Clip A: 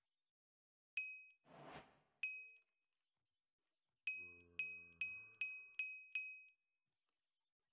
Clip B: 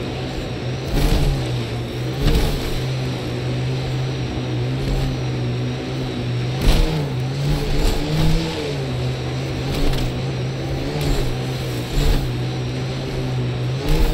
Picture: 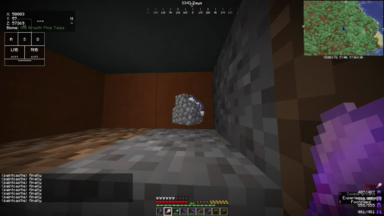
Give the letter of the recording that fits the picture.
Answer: A